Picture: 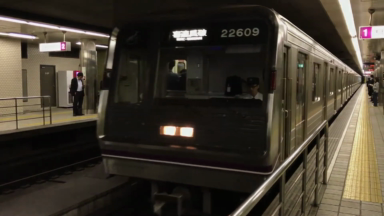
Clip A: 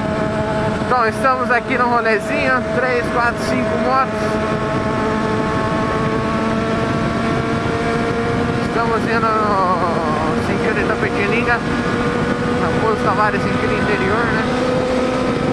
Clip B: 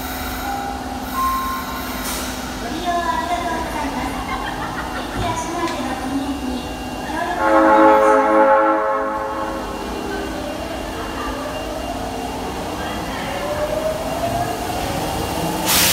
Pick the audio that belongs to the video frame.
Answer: B